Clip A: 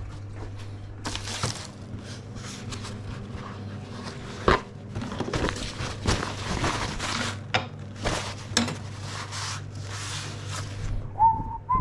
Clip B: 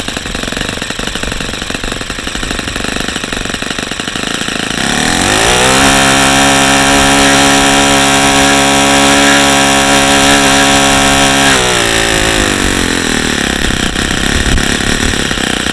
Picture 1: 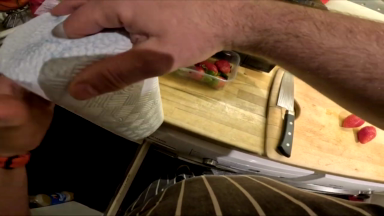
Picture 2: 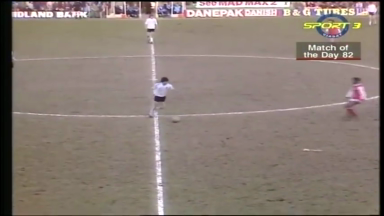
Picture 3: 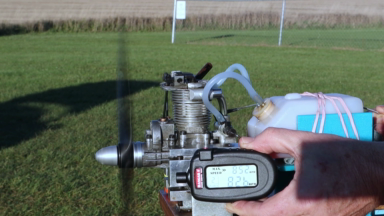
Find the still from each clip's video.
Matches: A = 1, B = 3